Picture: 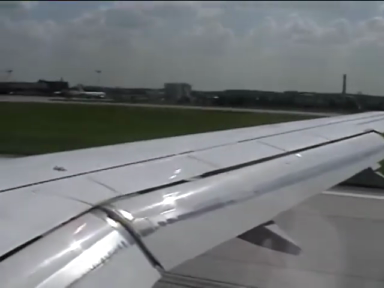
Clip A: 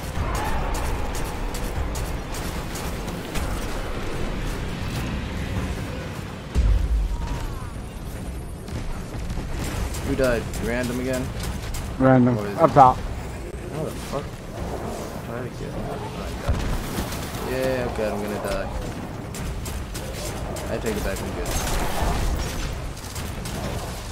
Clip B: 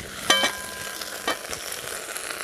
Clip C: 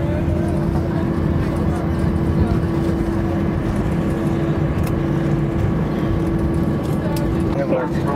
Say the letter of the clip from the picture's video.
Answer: C